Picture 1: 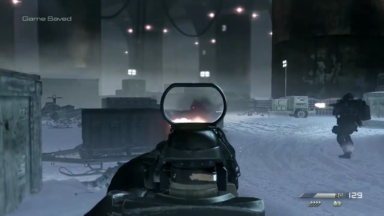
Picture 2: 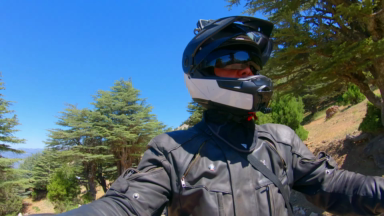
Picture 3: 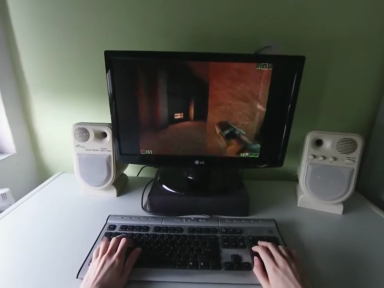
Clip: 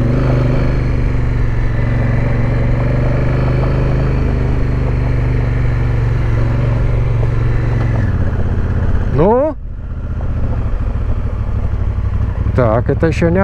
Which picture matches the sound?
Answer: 2